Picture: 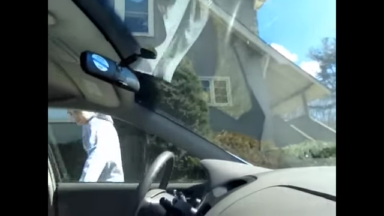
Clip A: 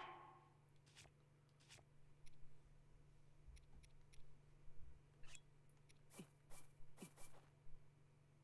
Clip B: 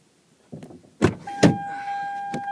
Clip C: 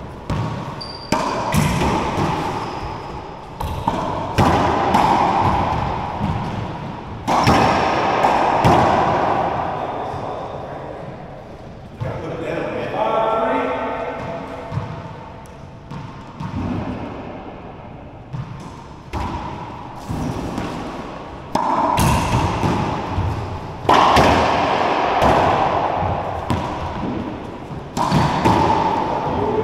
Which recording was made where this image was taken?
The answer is B